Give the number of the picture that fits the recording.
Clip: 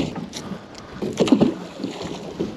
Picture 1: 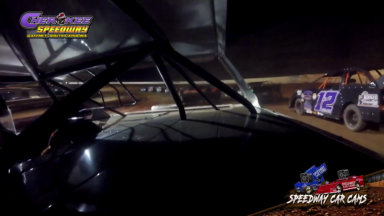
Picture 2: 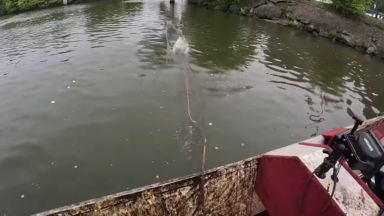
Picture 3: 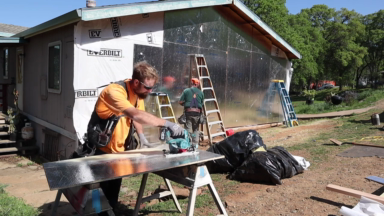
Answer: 2